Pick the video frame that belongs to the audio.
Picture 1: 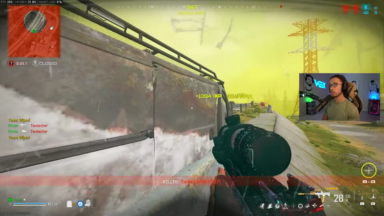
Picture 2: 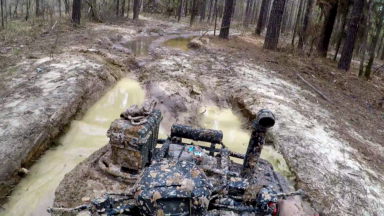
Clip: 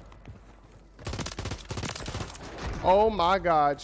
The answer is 1